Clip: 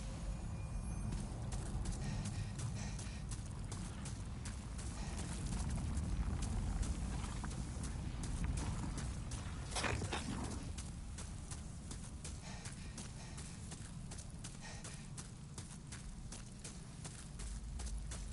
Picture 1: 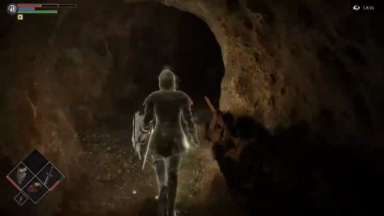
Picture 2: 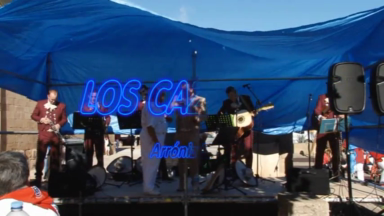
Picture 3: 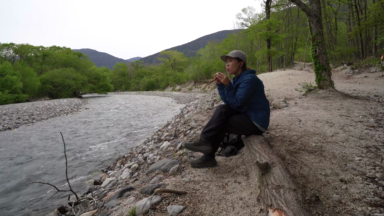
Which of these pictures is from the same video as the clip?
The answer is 1